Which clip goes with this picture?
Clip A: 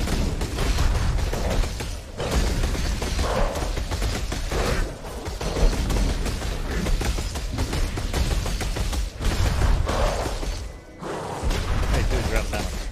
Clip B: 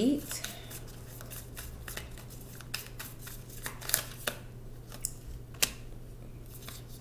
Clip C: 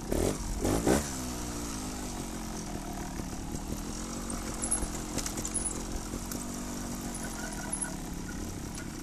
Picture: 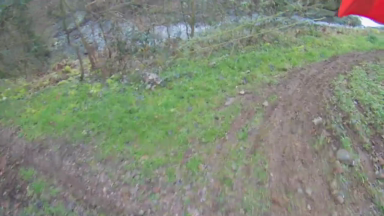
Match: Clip C